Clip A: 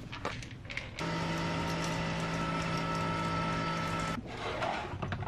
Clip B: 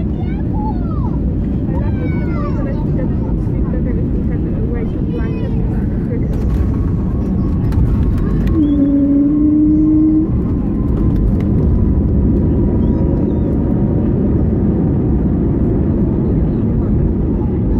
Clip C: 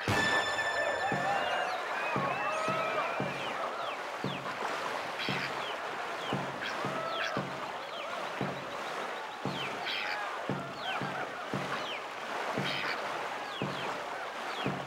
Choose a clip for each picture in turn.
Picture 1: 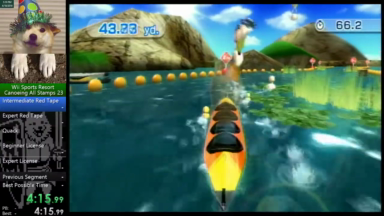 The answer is C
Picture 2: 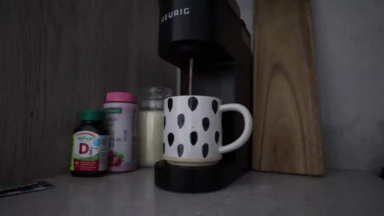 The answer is A